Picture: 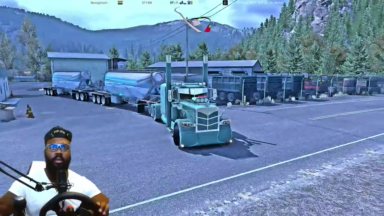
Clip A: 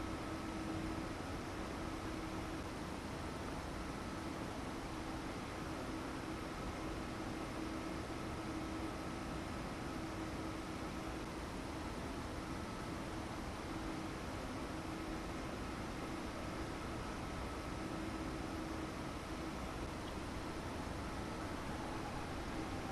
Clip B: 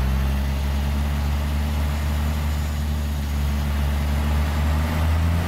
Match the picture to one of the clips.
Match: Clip B